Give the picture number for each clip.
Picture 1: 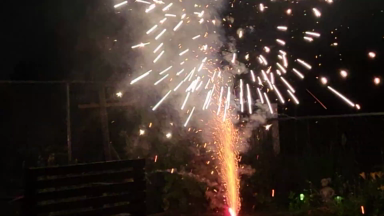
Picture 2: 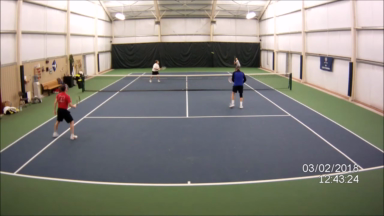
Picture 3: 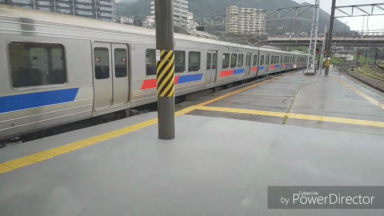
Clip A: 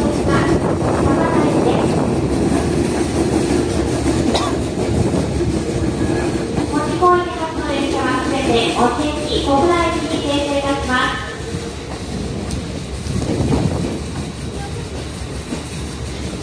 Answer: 3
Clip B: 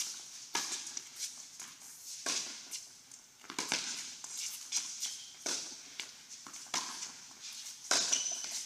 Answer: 2